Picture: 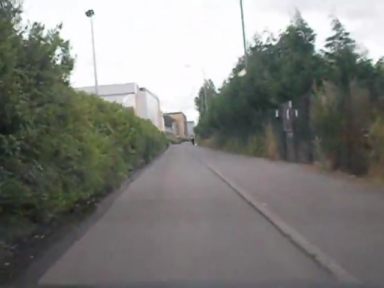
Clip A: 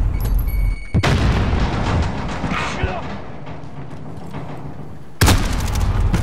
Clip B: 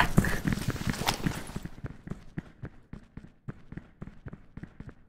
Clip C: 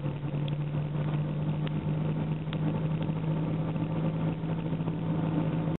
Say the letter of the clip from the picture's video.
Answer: C